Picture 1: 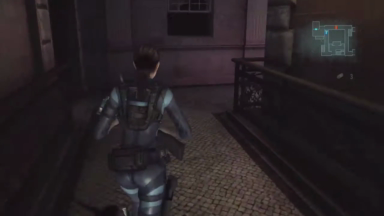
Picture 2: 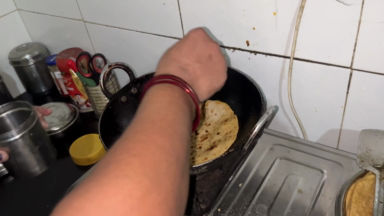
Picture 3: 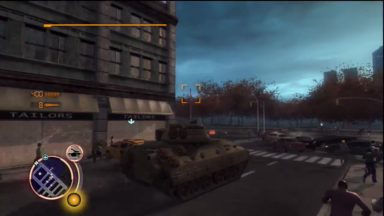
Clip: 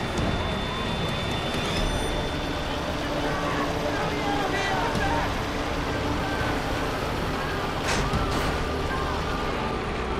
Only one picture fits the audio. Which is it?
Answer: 3